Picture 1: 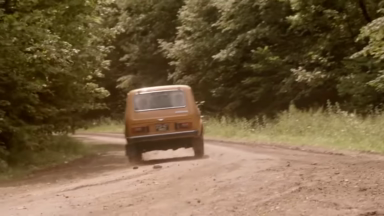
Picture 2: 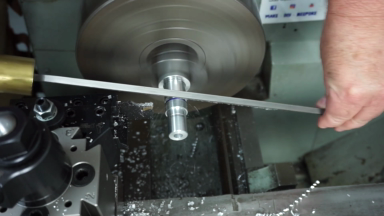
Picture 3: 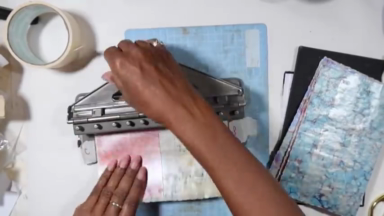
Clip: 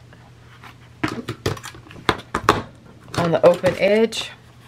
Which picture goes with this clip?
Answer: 3